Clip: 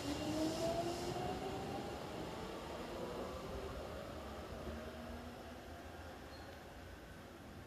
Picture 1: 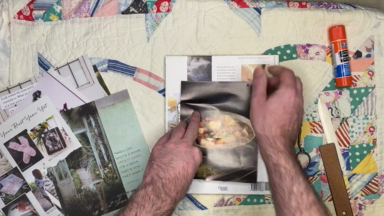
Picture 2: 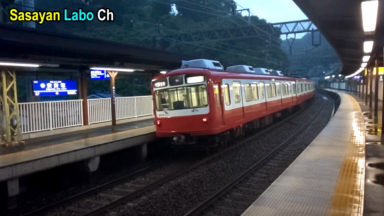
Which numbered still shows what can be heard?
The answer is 2